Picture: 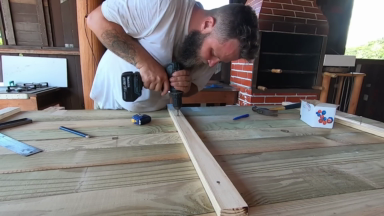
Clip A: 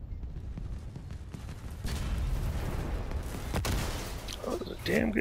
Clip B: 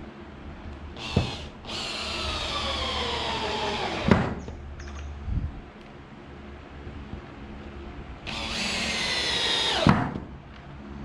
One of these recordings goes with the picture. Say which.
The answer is B